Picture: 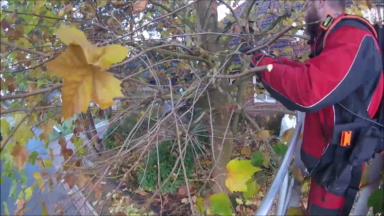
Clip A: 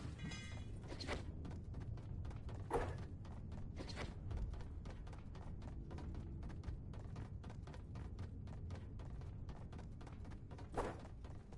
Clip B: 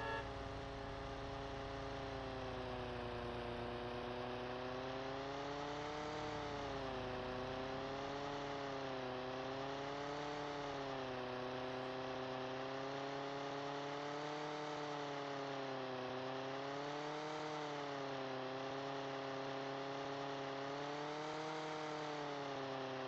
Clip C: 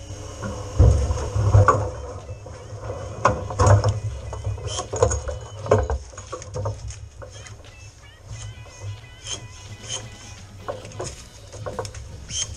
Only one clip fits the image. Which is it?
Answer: C